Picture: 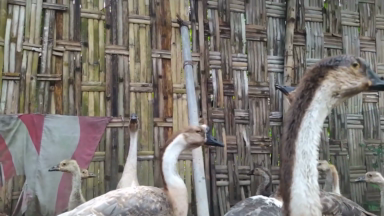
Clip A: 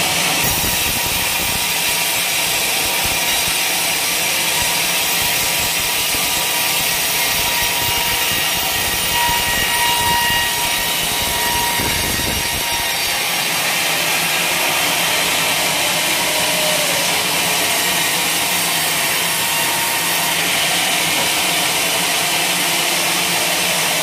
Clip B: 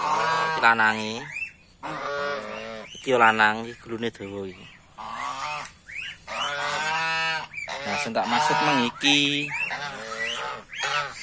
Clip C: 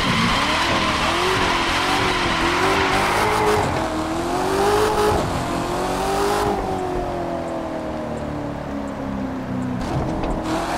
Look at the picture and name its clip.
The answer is B